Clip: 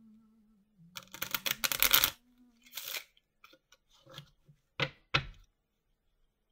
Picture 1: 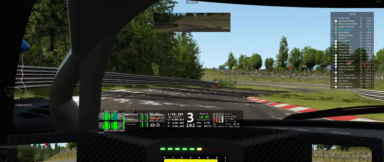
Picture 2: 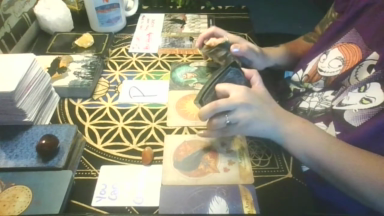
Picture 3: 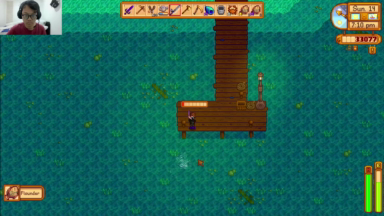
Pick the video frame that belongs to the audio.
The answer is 2